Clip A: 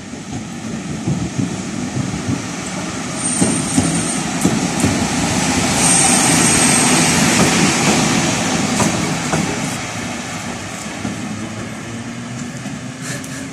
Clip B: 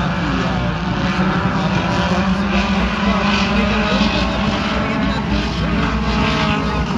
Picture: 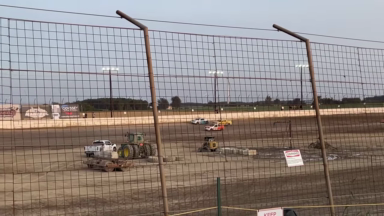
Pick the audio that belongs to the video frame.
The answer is B